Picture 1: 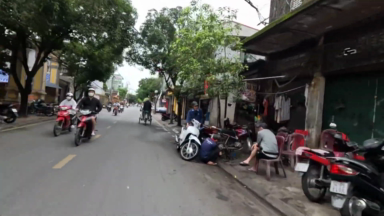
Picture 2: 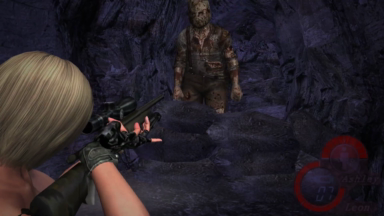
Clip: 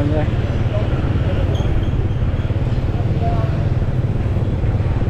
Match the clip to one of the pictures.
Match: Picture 1